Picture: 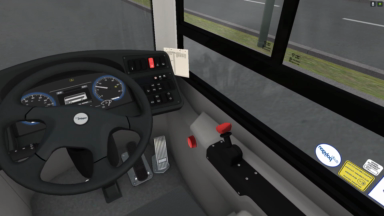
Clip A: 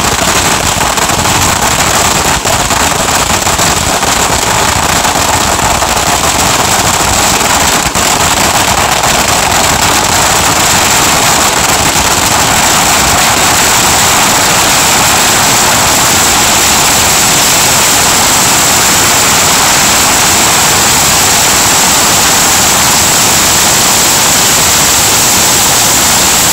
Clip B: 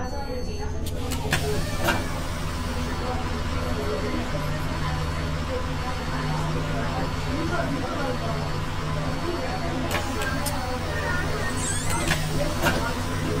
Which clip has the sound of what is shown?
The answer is B